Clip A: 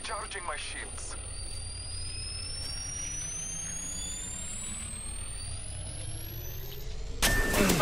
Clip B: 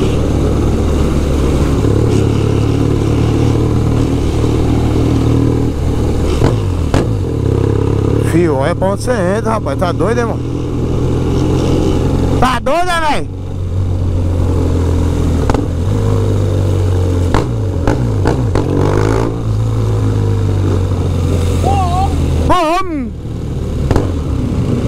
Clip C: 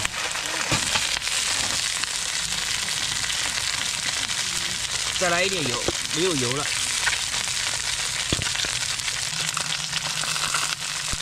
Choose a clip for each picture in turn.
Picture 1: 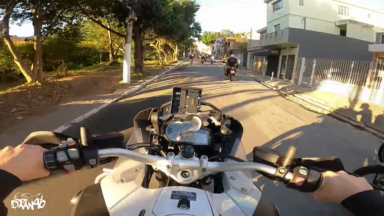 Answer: B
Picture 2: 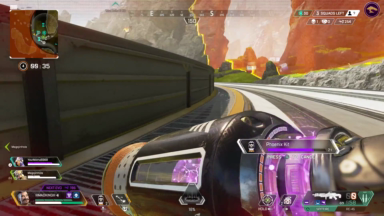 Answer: A